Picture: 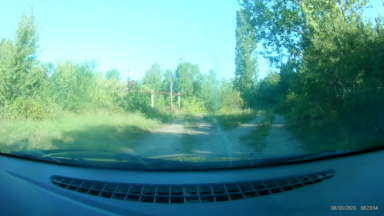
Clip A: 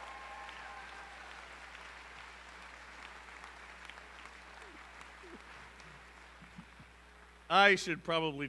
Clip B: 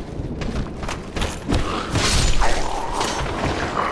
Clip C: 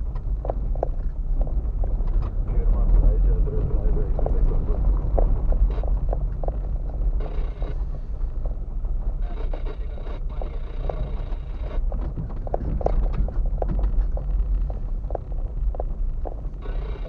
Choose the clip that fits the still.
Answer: C